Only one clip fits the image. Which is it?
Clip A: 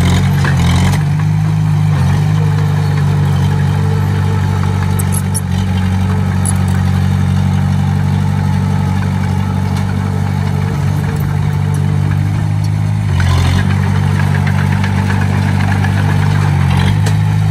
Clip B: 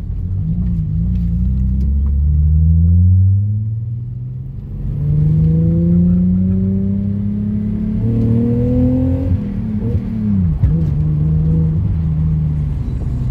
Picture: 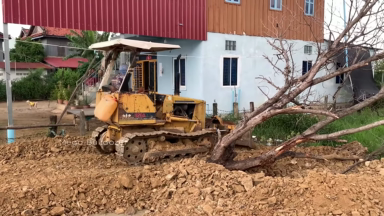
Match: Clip A